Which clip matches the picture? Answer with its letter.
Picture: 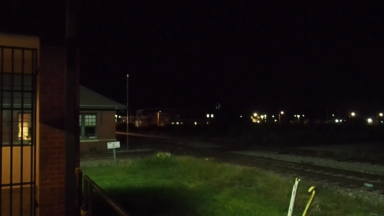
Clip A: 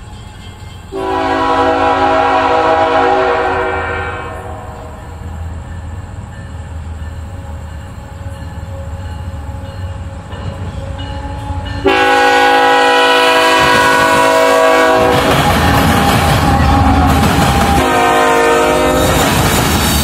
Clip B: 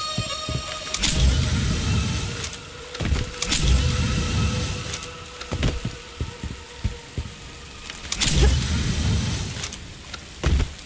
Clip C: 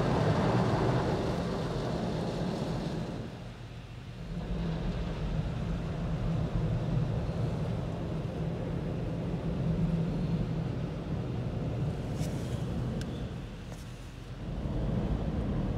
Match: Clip A